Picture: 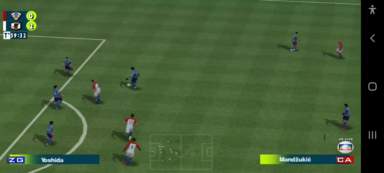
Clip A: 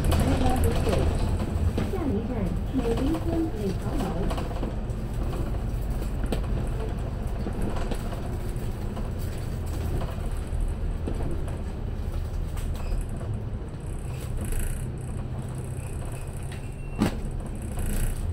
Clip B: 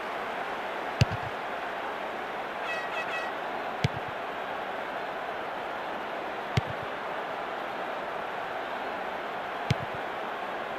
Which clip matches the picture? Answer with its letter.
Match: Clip B